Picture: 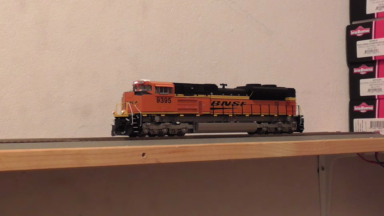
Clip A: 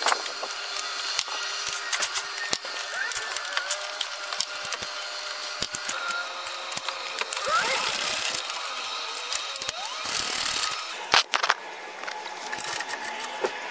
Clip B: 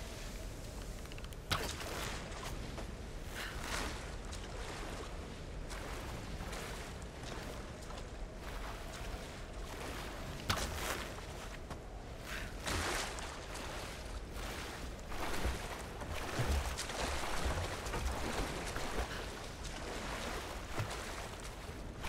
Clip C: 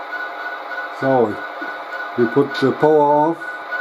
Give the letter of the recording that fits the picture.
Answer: C